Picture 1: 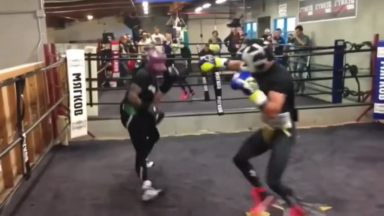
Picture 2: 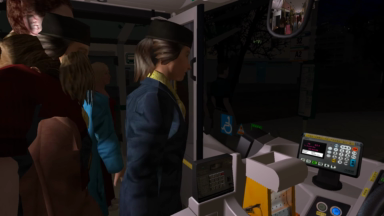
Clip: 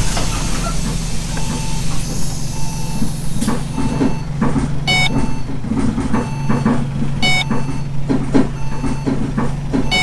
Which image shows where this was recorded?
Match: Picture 2